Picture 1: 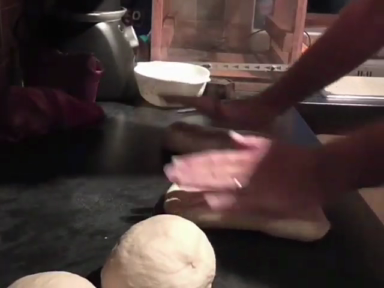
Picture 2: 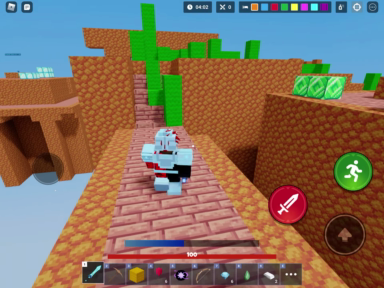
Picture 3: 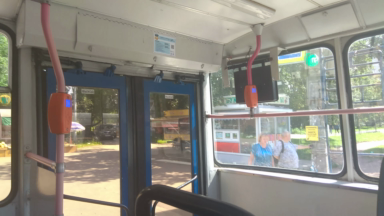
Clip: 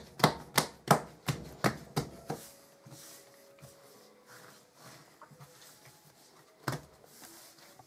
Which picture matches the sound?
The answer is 1